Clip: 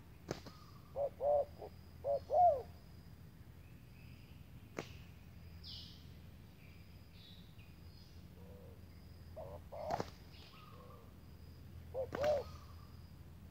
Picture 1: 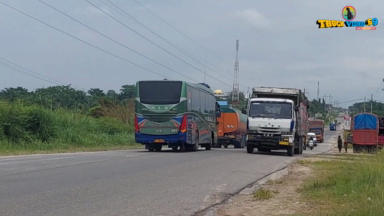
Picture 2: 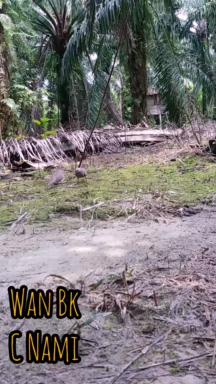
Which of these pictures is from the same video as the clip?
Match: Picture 2